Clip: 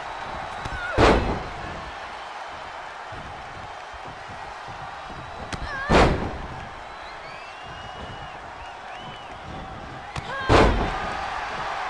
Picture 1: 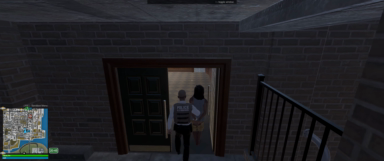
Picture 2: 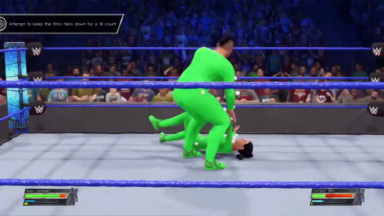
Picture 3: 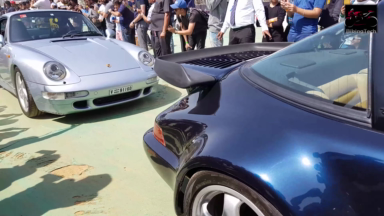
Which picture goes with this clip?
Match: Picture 2